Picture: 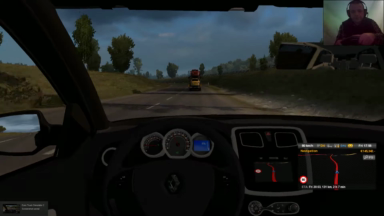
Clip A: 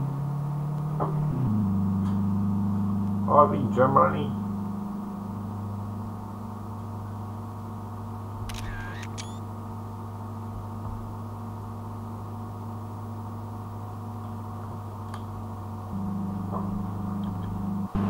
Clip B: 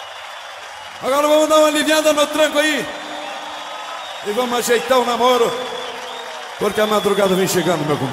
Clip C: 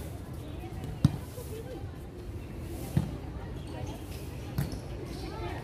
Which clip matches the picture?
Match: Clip A